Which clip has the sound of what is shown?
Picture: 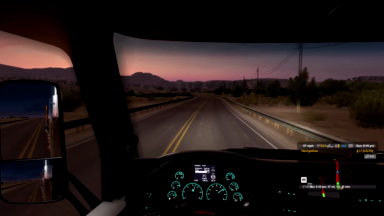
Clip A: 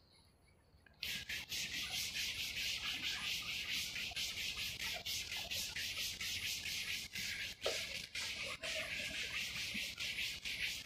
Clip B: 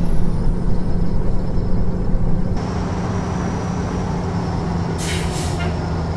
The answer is B